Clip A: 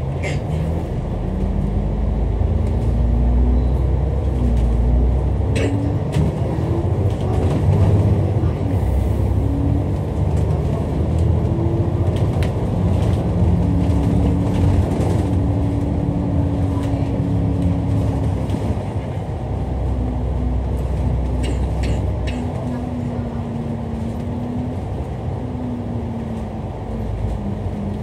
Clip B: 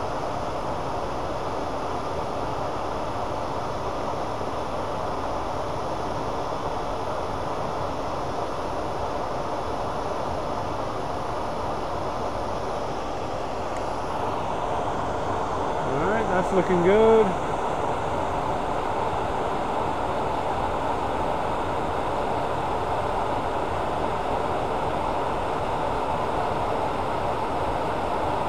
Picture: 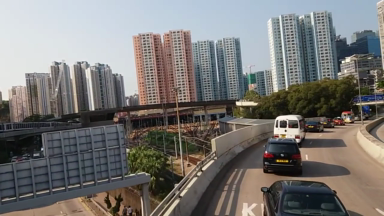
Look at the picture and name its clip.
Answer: A